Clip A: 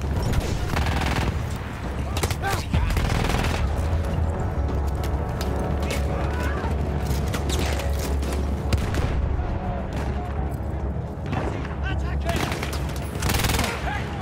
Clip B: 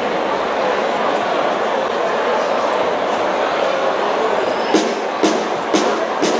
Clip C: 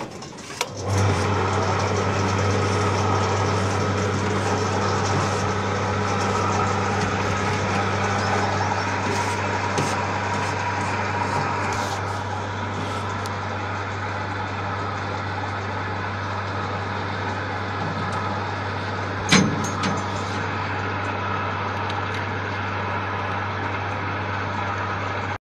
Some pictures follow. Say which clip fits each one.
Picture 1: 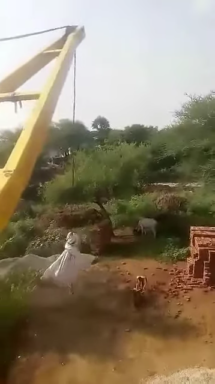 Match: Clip C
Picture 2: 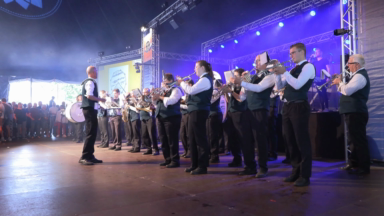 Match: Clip B